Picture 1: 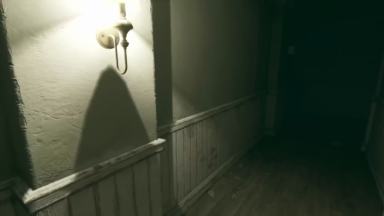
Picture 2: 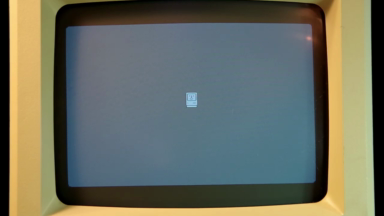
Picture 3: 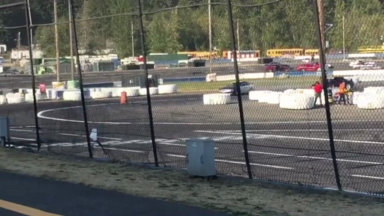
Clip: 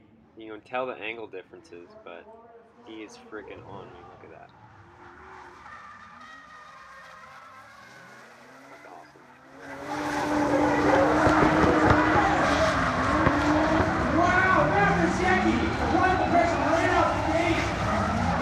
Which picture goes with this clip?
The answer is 3